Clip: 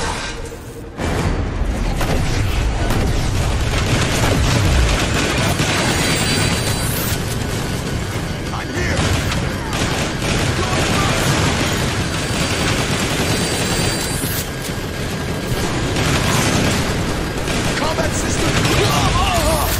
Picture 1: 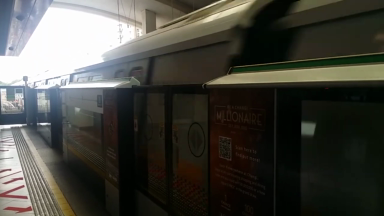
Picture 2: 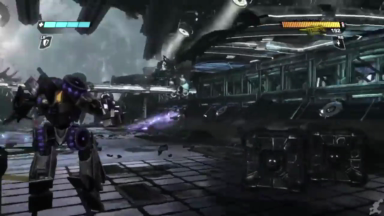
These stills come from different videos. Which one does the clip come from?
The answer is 2